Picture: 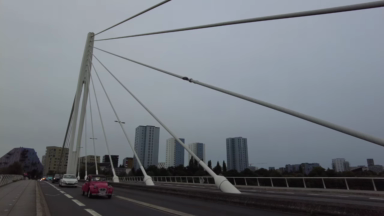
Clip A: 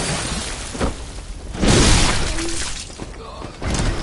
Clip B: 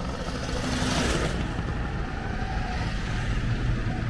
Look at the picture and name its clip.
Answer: B